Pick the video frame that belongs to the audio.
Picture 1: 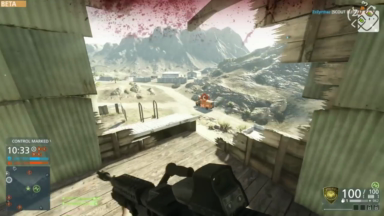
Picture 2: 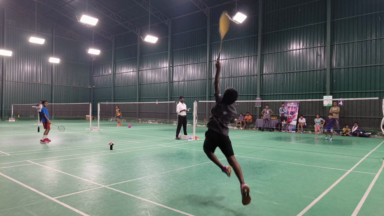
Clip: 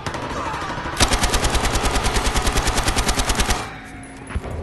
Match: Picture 1